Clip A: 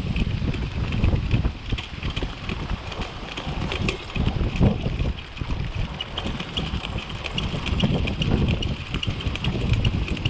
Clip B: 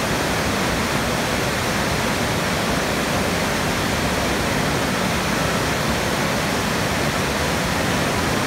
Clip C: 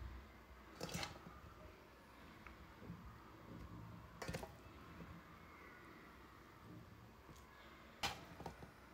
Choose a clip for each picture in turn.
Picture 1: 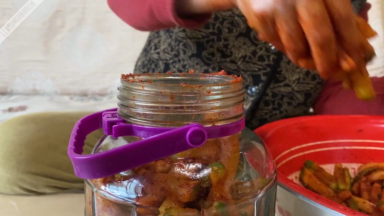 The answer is C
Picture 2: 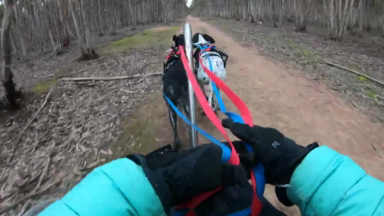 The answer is A